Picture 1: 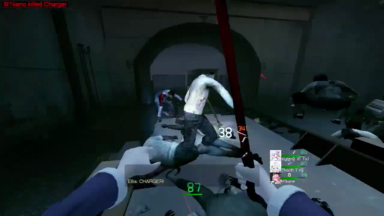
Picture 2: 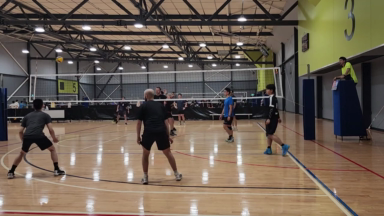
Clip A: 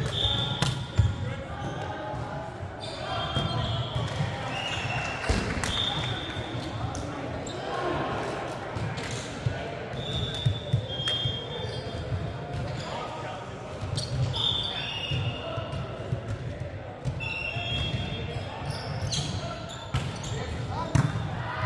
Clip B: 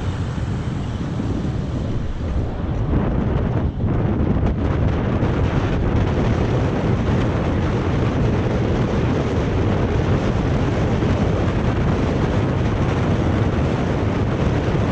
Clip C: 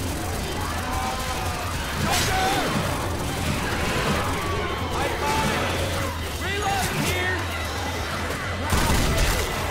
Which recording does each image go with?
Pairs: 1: C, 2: A